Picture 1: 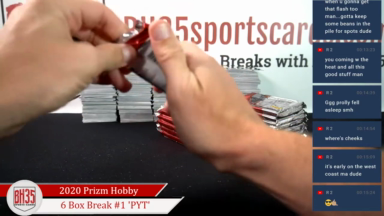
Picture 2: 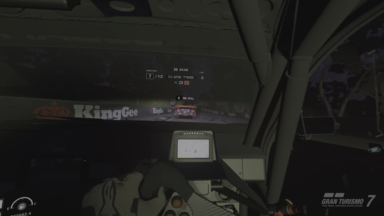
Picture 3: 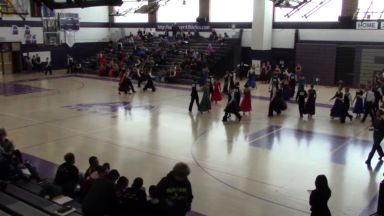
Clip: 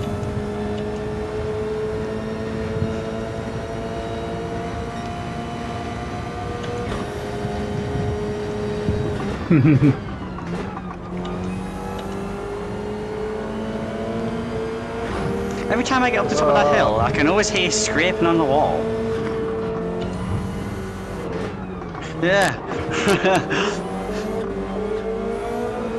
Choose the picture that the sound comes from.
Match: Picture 2